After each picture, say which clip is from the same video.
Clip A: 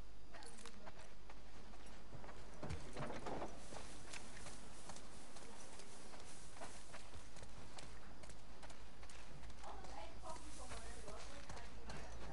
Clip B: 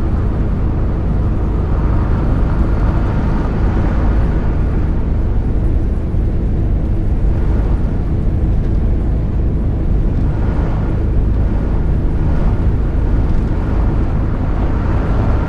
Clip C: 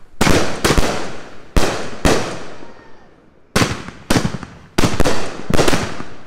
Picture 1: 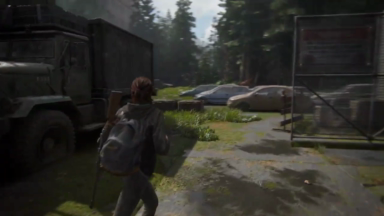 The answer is A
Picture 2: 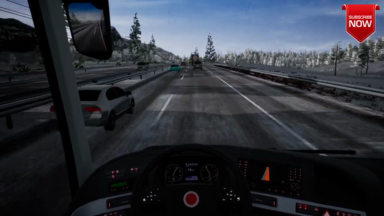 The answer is B